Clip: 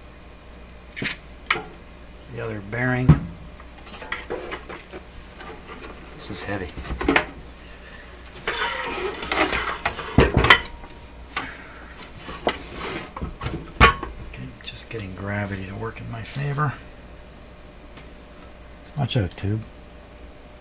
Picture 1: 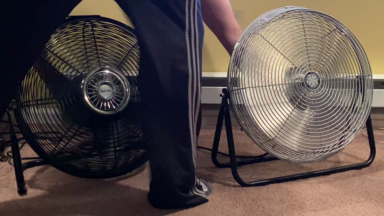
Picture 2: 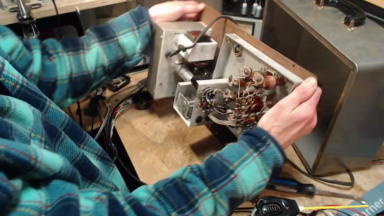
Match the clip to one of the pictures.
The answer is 2